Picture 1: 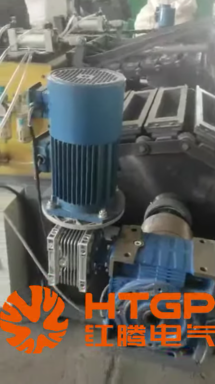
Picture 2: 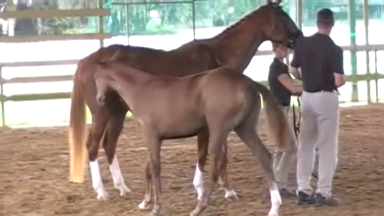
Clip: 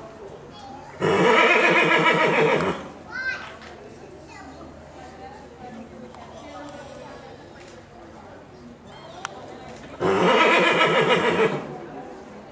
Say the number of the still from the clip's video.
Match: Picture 2